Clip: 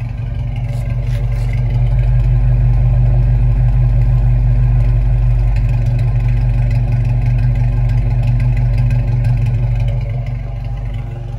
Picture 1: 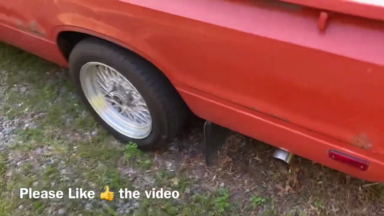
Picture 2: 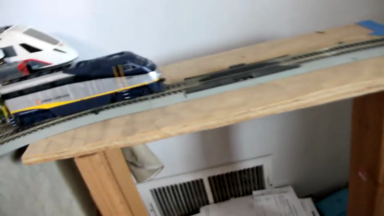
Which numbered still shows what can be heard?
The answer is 1